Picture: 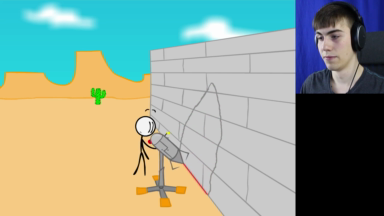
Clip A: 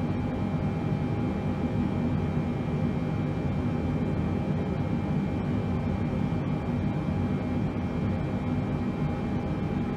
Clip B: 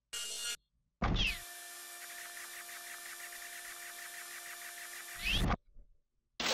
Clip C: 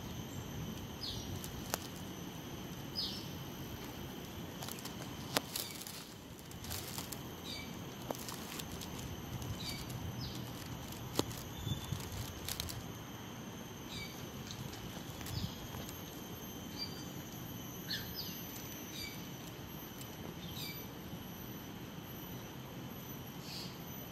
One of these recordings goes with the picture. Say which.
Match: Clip B